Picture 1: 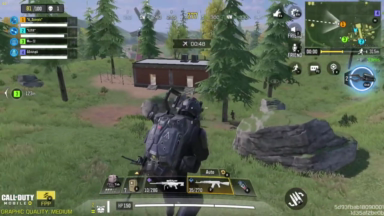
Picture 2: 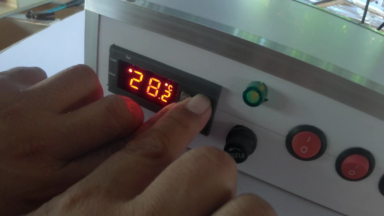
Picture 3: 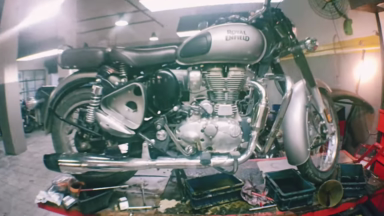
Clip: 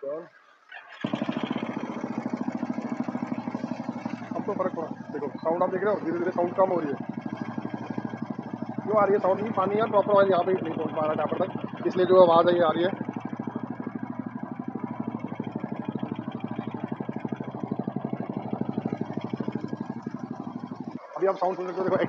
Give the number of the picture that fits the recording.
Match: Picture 3